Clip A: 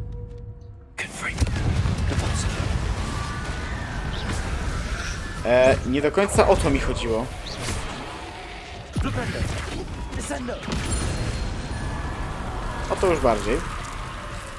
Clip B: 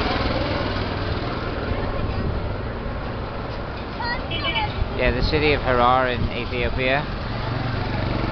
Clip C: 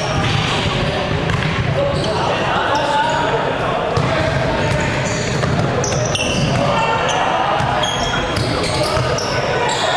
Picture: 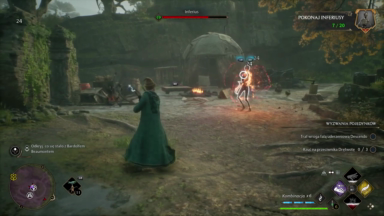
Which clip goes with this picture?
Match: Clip A